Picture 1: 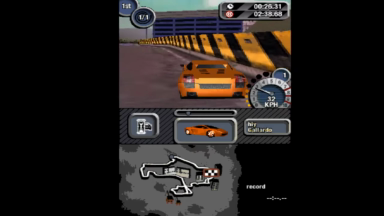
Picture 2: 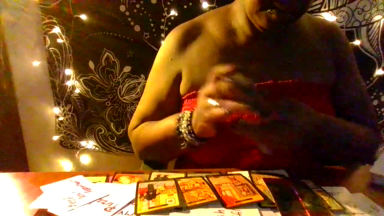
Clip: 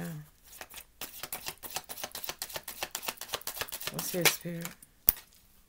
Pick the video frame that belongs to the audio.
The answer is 2